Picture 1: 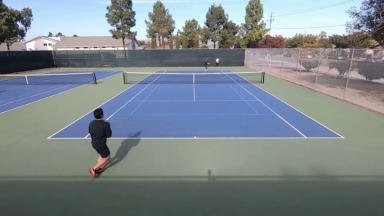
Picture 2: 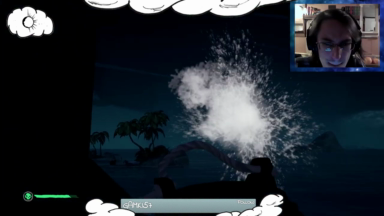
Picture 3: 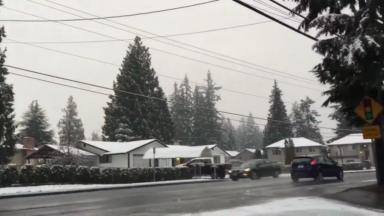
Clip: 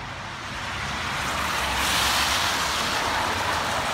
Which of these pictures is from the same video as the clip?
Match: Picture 3